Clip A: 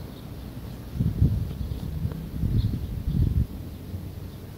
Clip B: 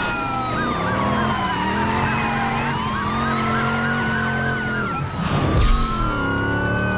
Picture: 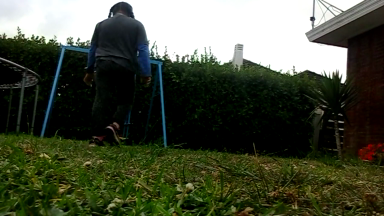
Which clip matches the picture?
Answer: A